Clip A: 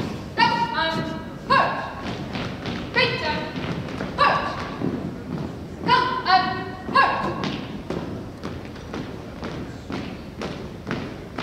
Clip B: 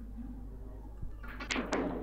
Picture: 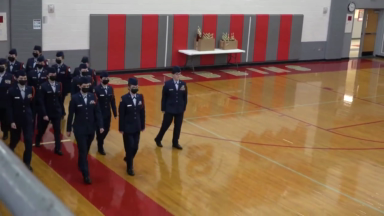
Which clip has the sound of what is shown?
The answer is A